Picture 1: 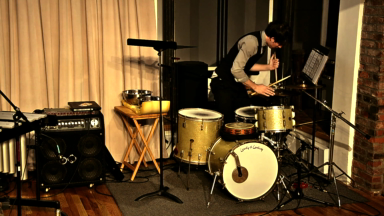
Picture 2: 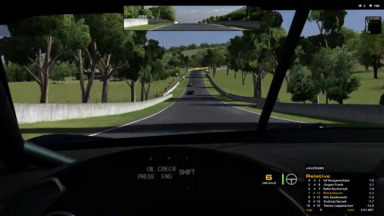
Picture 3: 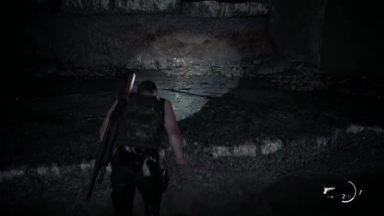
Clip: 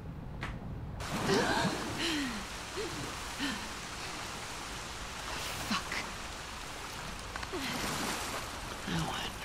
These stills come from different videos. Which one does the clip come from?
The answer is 3